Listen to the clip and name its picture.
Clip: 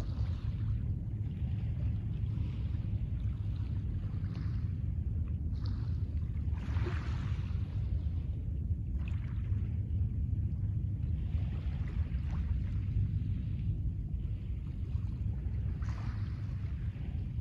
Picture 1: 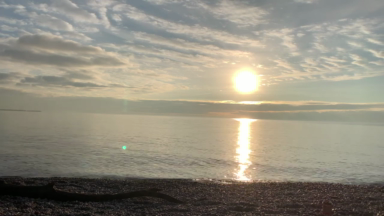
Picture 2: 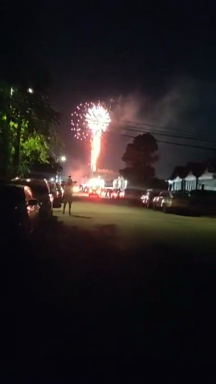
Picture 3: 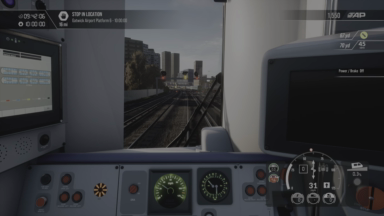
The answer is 1